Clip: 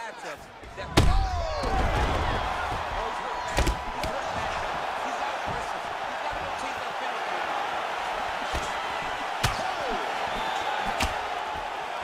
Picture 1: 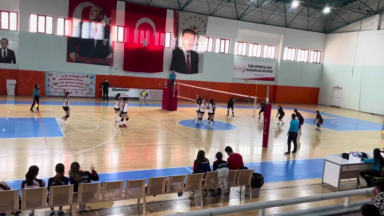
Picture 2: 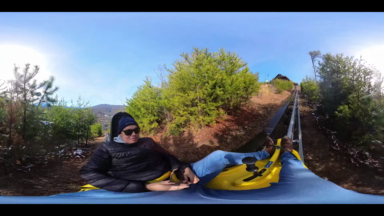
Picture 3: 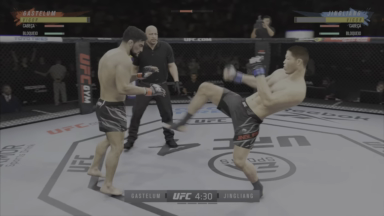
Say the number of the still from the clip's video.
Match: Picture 3